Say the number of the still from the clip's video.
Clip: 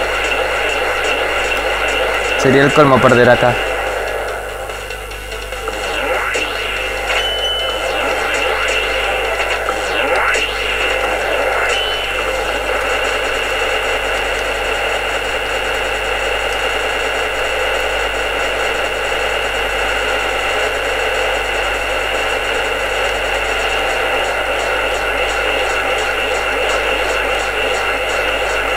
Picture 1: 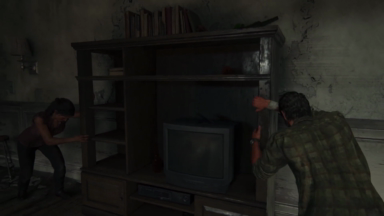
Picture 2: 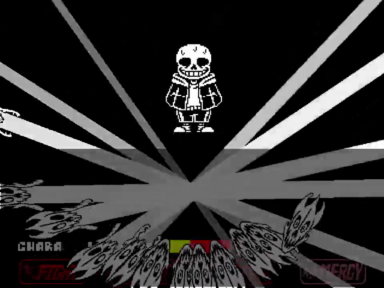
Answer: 2